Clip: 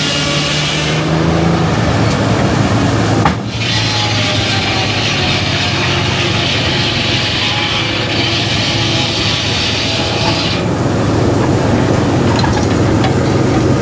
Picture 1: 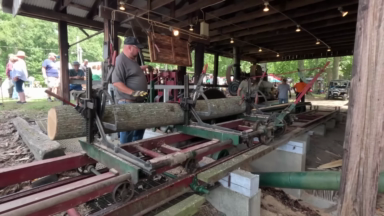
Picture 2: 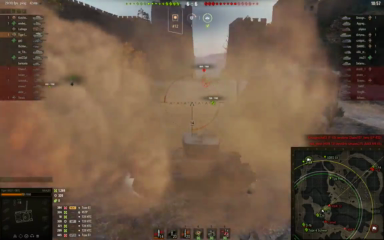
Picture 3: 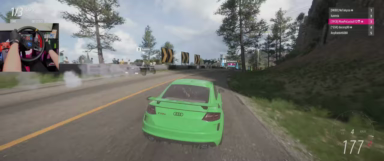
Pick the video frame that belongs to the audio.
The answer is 1